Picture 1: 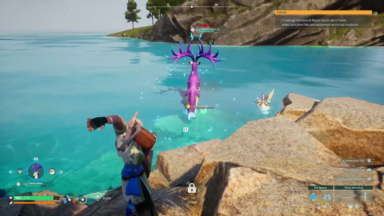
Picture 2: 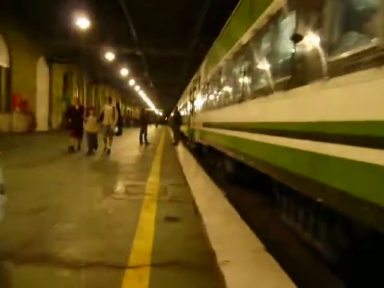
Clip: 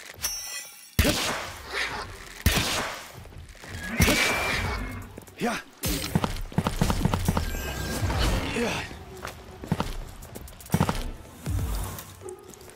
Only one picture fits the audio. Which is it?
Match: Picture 1